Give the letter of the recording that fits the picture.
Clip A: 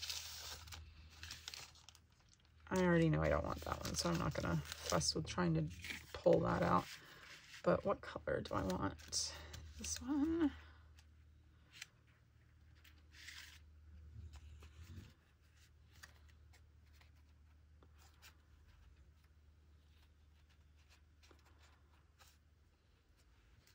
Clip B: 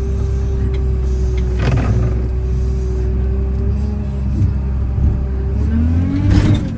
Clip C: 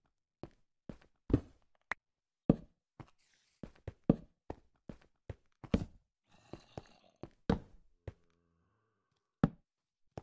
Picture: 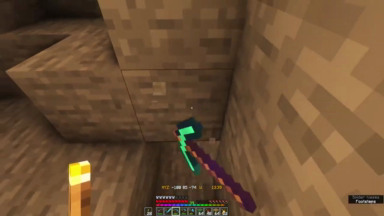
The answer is C